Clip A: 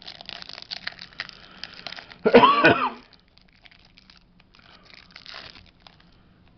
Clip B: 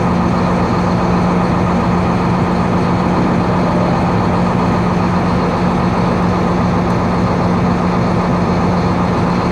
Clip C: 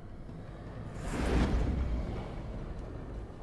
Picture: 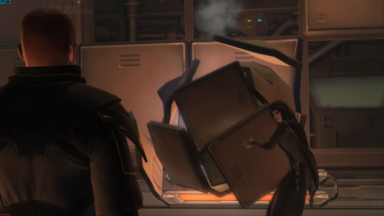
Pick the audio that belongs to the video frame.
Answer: C